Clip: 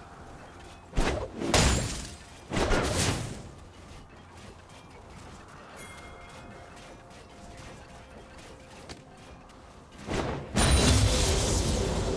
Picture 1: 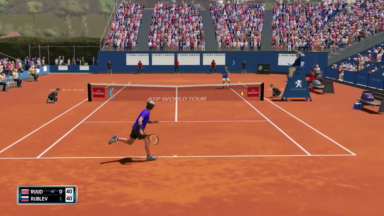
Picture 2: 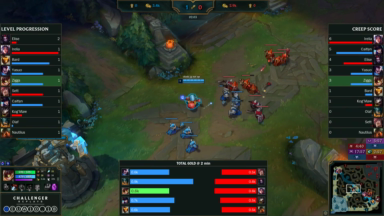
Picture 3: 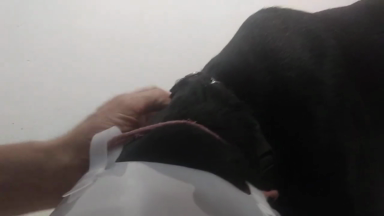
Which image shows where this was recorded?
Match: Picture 2